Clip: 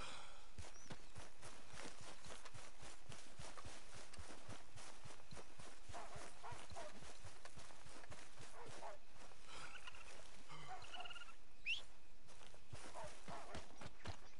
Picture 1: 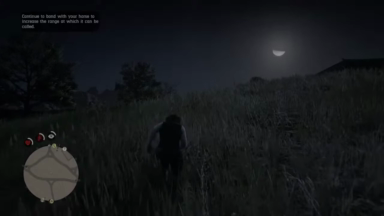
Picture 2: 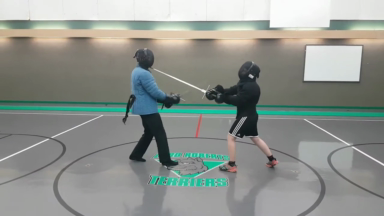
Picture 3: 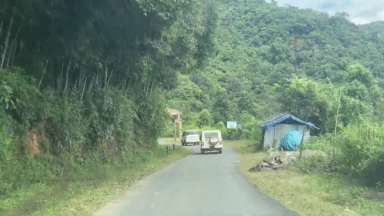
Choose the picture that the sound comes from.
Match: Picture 1